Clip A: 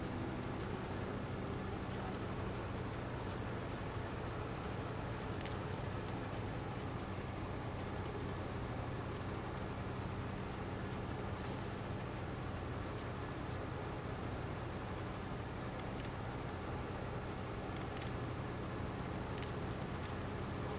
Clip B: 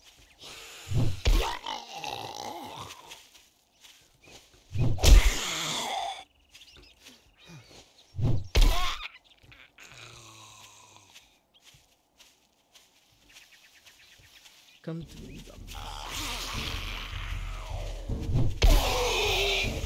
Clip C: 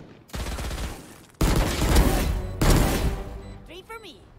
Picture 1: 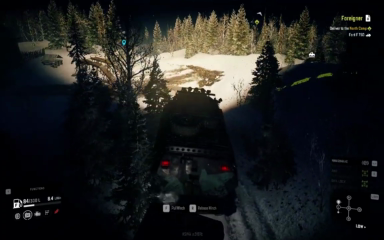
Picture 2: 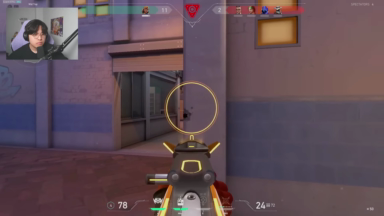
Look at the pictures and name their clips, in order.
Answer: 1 A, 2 C